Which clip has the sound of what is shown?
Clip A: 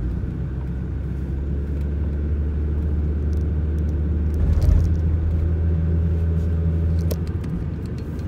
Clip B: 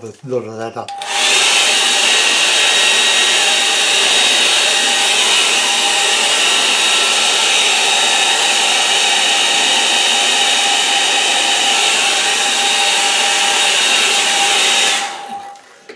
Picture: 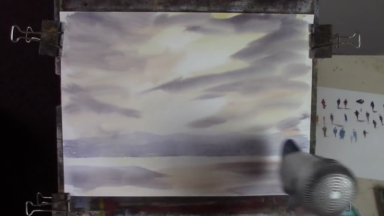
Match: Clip B